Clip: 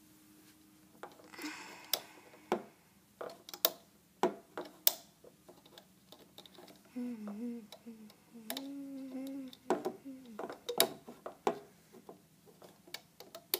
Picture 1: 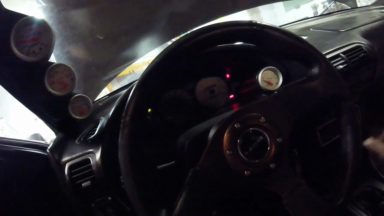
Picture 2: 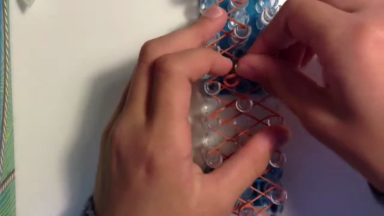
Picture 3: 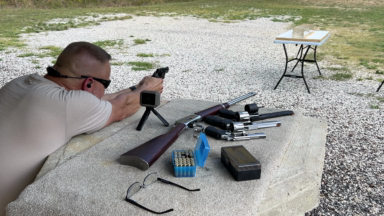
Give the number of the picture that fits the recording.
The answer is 2